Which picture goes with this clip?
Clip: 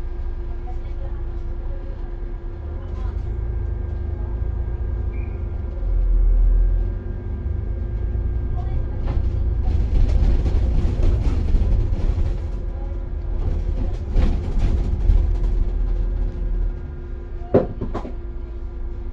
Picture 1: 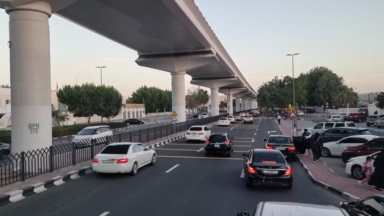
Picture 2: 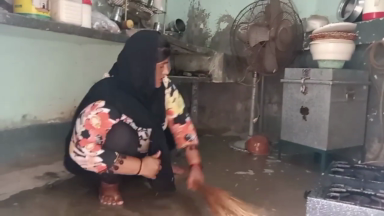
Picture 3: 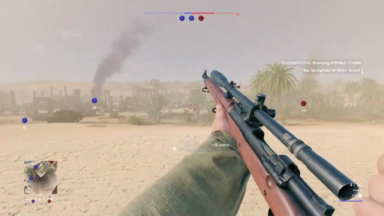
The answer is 1